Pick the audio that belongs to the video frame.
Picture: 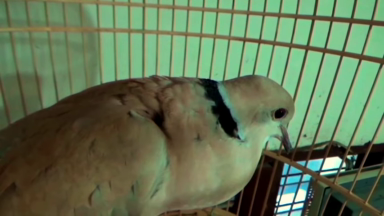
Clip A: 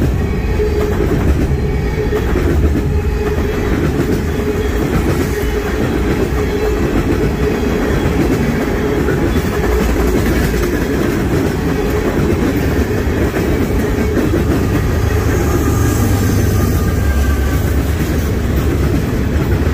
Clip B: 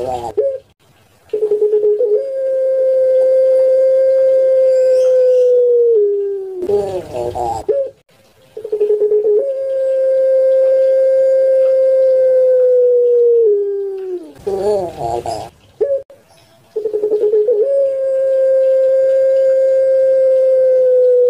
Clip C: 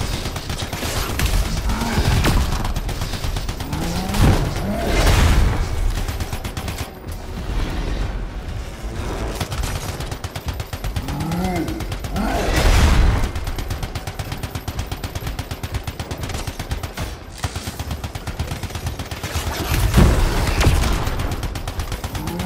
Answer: B